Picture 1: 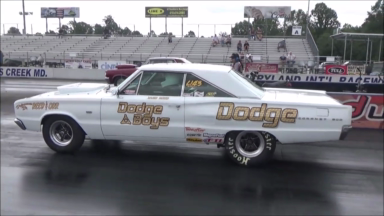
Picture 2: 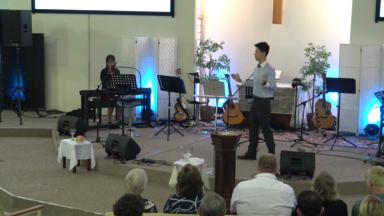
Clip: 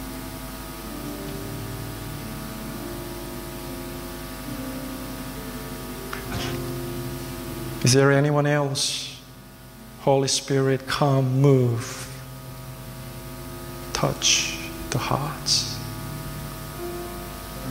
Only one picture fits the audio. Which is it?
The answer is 2